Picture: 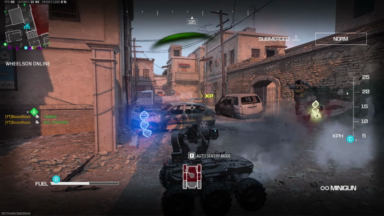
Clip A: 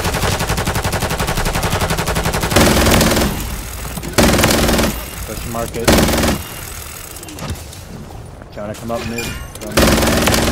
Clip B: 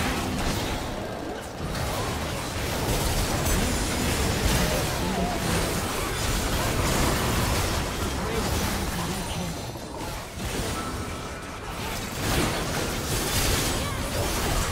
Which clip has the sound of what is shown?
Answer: A